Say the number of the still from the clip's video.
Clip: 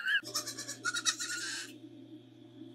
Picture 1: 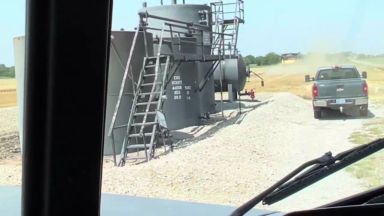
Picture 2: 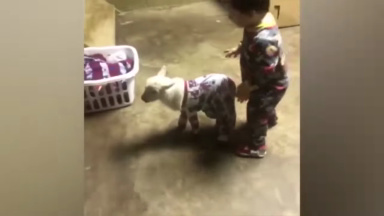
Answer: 2